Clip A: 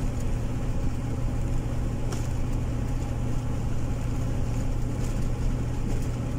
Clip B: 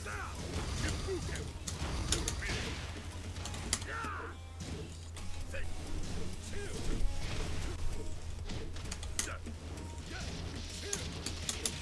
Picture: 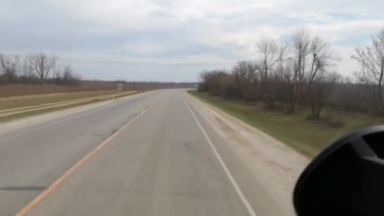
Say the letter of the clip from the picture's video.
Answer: A